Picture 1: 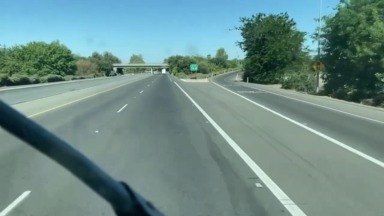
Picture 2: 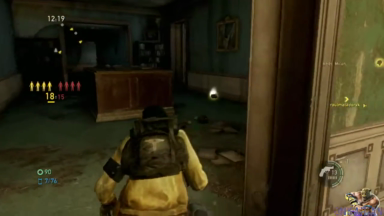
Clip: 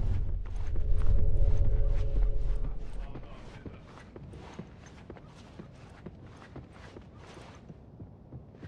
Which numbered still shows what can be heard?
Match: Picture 2